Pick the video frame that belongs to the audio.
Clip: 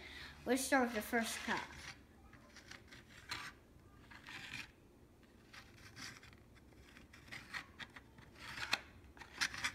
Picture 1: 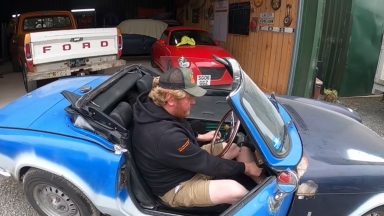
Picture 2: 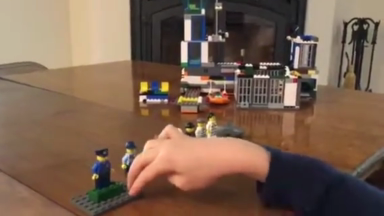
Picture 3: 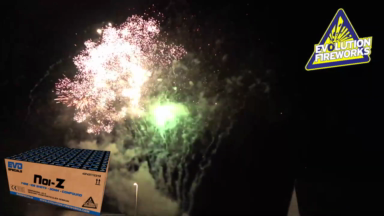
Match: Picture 2